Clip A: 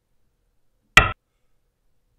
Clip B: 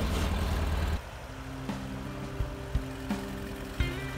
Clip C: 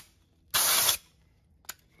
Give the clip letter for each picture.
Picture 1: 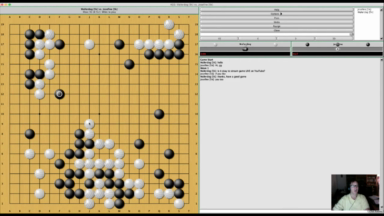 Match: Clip A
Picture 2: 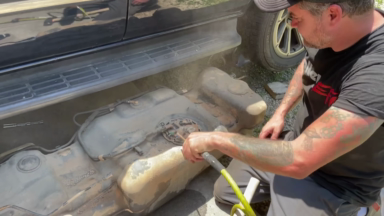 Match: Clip C